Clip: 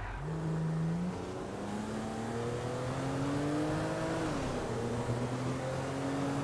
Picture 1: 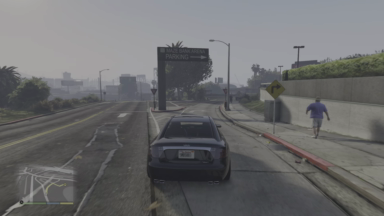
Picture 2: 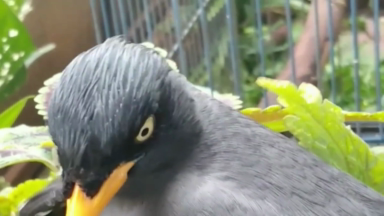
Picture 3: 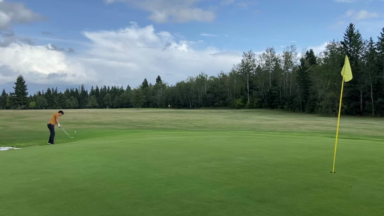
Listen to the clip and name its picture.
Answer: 1